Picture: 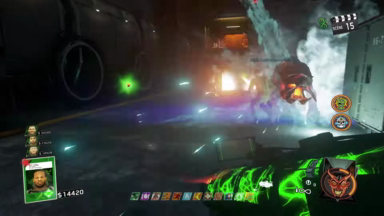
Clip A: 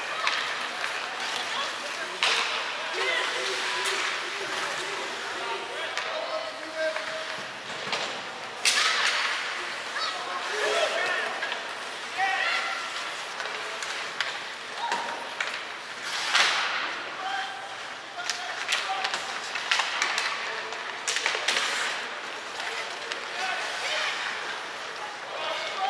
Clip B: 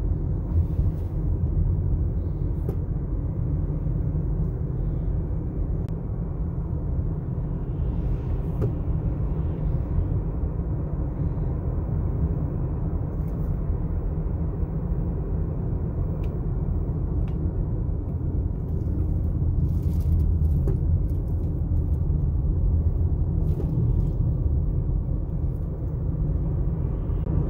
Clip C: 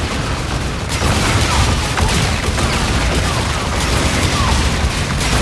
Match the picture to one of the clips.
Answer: C